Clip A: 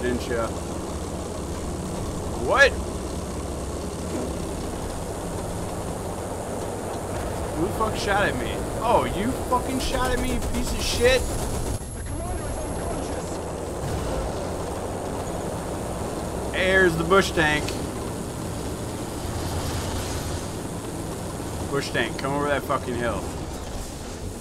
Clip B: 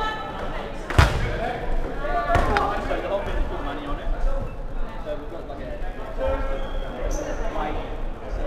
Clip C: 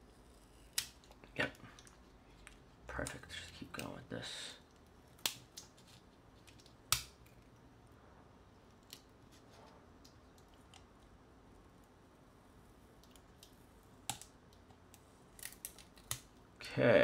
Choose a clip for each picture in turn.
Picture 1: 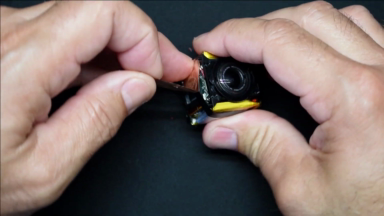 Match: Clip C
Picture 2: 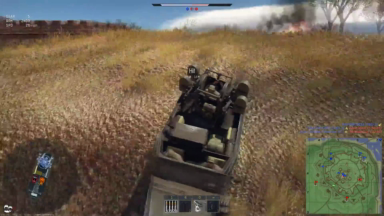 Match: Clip A